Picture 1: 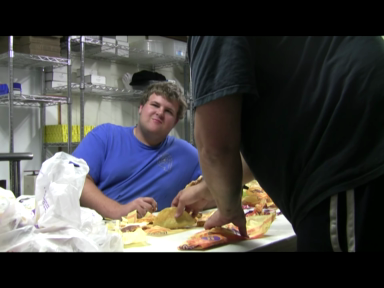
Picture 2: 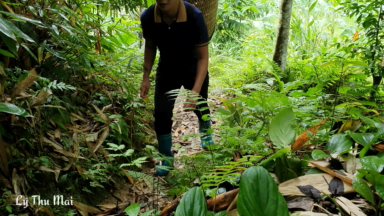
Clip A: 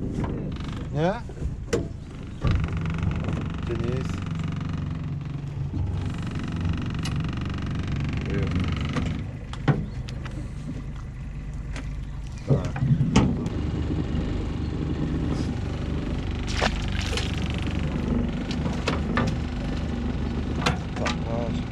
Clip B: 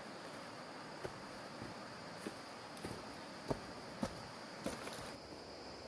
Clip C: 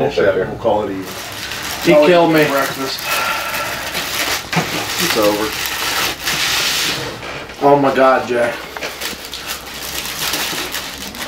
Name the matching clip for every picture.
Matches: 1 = C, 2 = B